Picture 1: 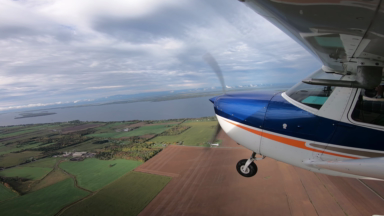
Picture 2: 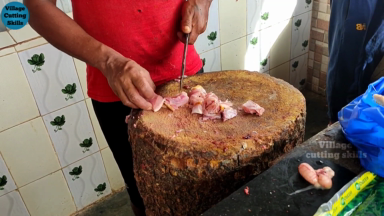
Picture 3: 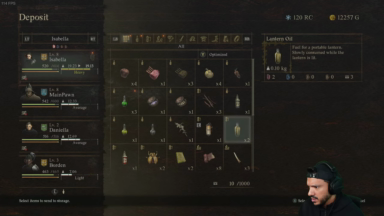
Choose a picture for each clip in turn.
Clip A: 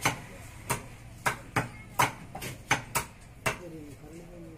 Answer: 2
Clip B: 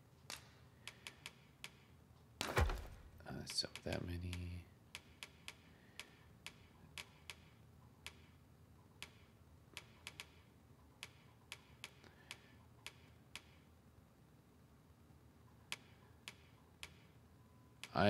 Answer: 3